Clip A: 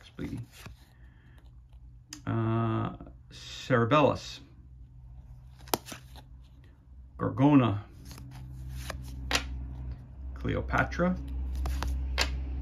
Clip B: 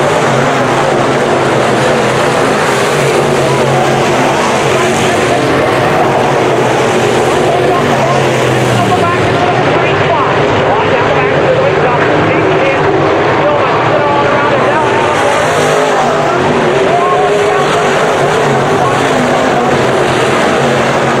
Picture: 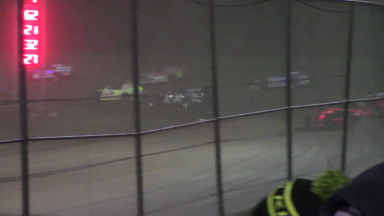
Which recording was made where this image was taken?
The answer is B